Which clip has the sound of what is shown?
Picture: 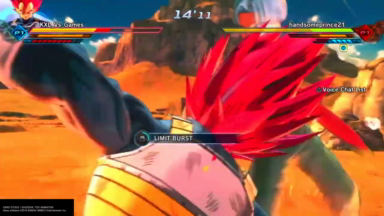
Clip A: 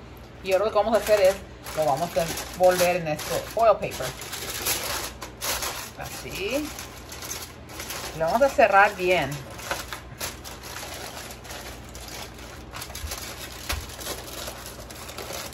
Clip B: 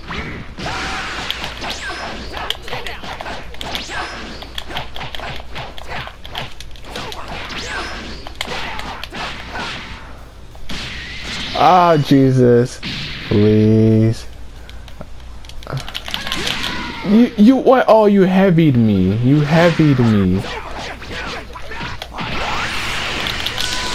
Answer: B